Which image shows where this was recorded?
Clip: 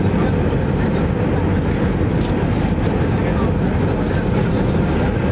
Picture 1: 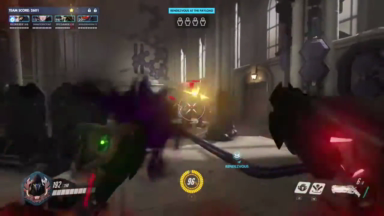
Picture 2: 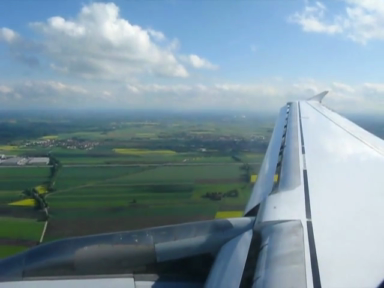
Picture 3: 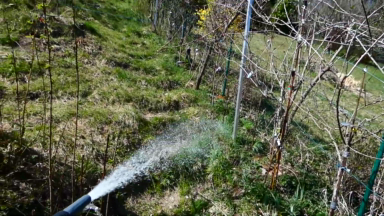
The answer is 2